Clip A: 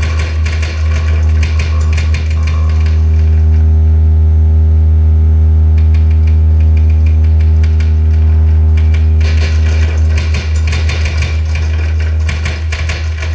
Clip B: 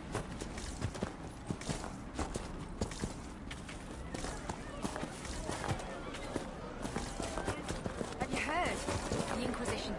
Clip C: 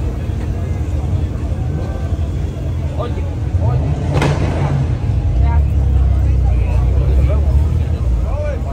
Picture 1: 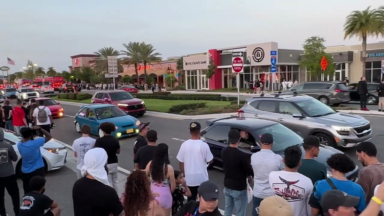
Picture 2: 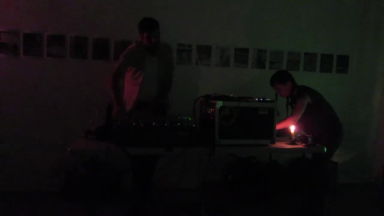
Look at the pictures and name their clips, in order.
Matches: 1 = C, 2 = A